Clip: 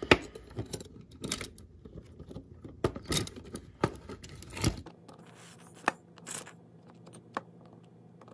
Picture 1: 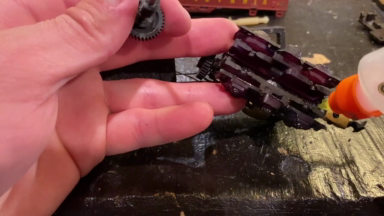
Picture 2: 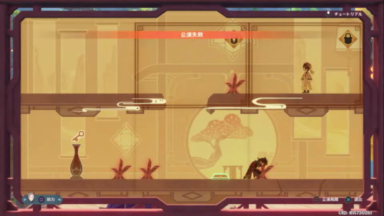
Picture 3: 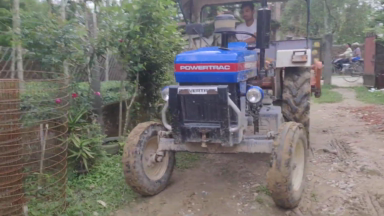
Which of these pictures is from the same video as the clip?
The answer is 1